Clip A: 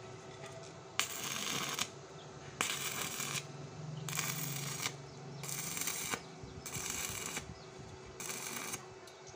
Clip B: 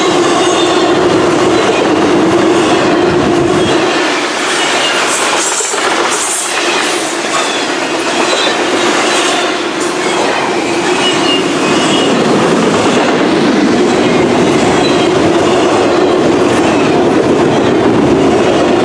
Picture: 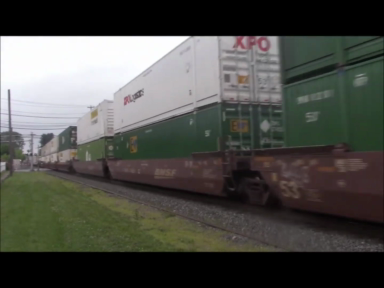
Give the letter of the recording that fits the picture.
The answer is B